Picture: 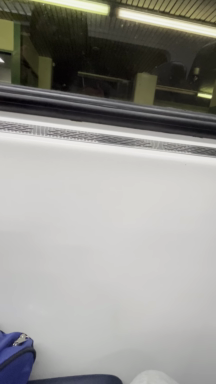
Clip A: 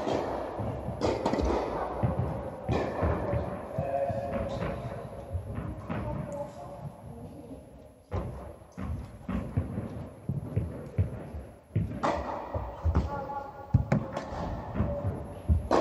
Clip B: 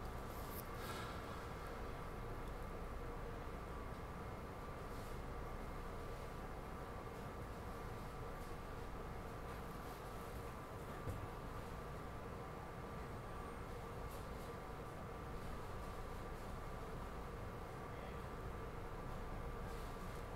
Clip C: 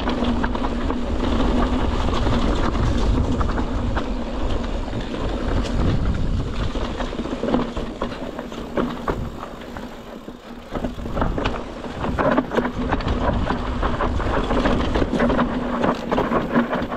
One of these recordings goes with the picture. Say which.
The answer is B